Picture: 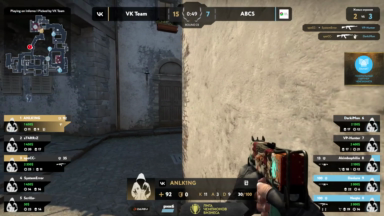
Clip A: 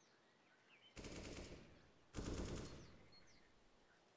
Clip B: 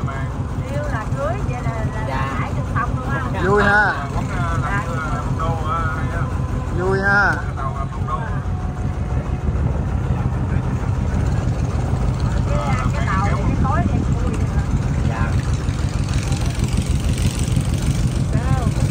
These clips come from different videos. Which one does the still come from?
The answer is A